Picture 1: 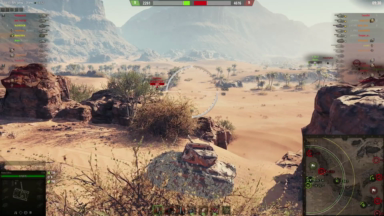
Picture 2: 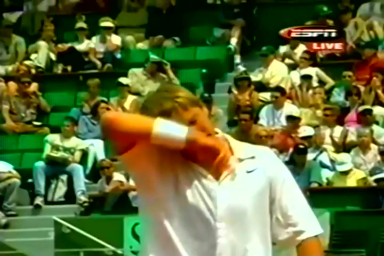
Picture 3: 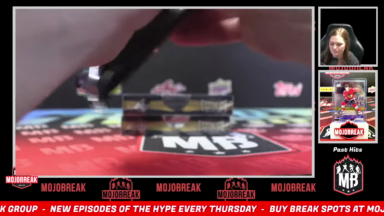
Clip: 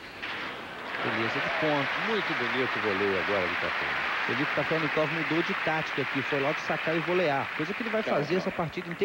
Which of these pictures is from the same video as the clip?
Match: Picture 2